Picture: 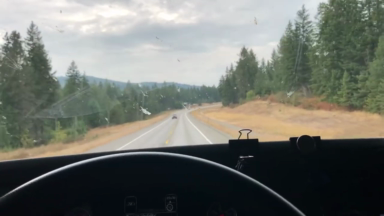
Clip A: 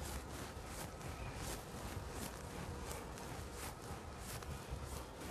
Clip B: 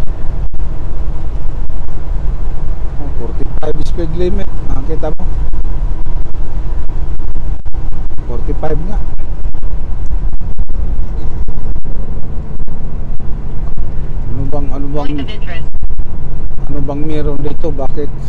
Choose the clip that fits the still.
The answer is B